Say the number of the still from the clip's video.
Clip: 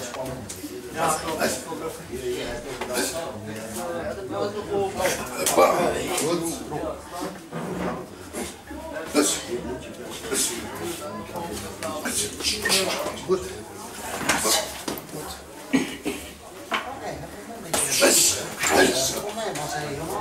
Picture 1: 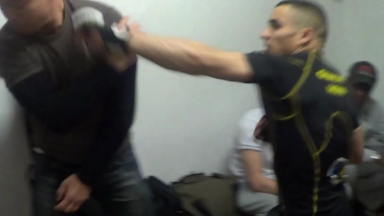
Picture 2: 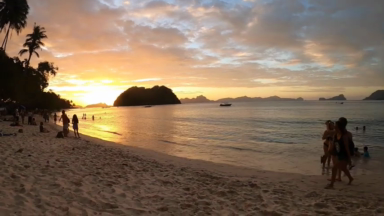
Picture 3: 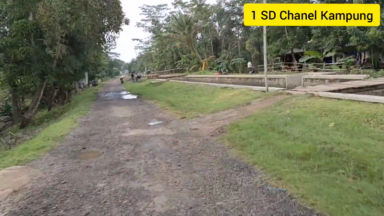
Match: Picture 1